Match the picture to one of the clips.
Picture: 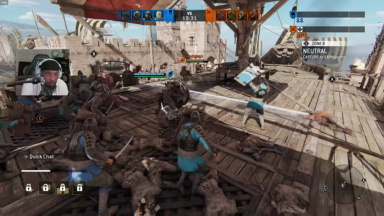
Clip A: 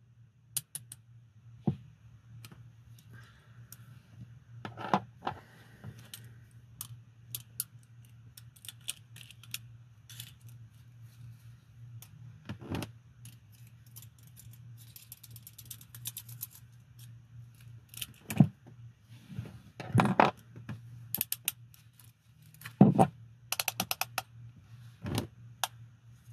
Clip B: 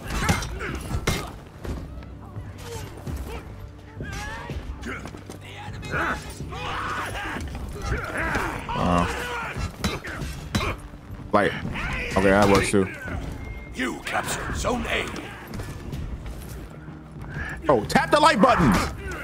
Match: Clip B